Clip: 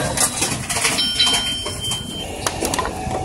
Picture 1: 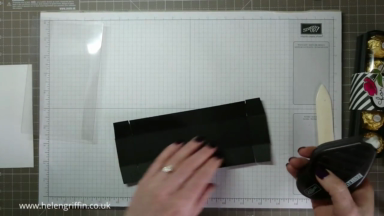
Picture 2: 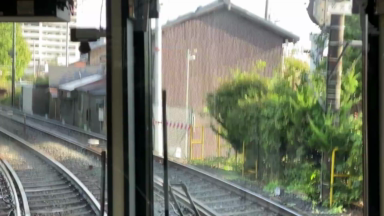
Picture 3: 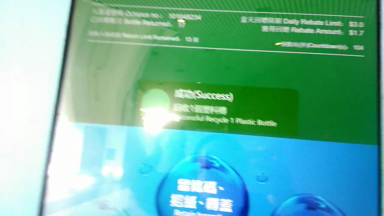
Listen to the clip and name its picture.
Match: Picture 3